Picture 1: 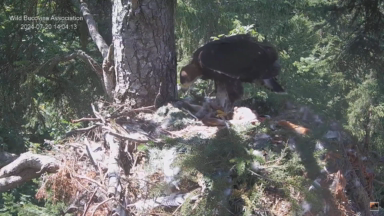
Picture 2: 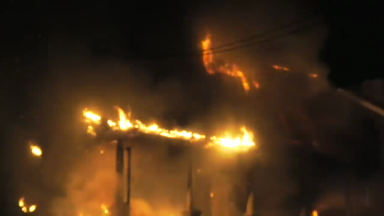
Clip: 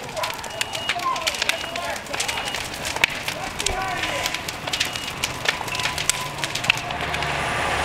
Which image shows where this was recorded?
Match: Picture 2